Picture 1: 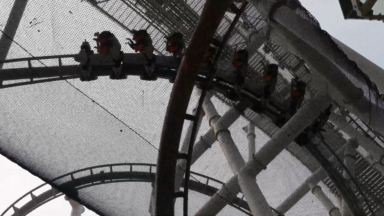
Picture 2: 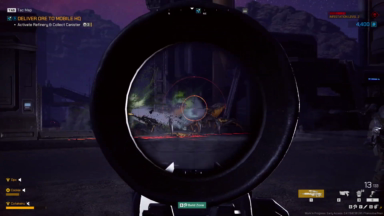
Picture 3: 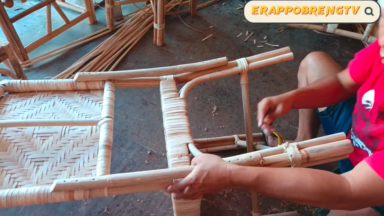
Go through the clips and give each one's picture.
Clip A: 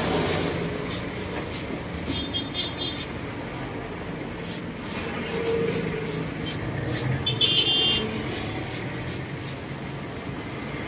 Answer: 3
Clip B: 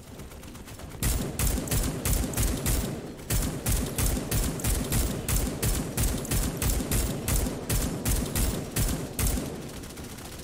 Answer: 2